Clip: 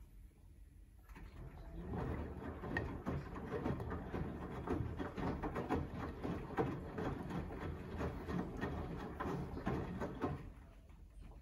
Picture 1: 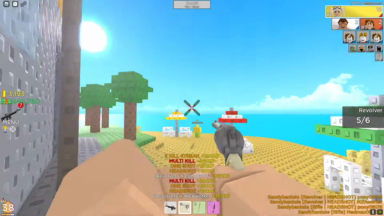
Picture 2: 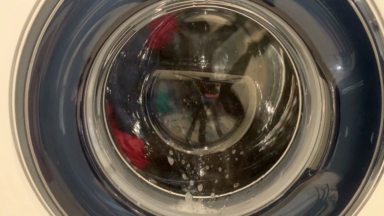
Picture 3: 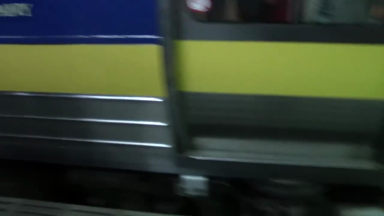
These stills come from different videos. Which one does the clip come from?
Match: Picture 2